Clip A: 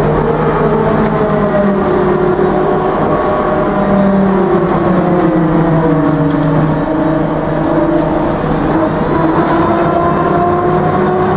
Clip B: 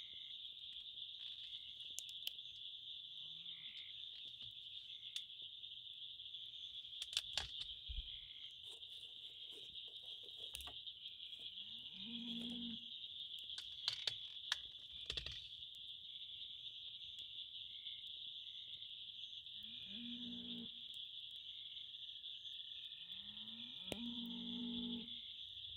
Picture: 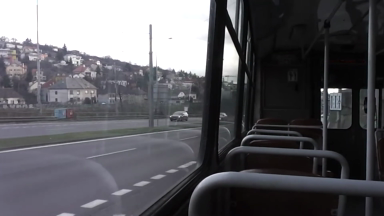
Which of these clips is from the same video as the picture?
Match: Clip A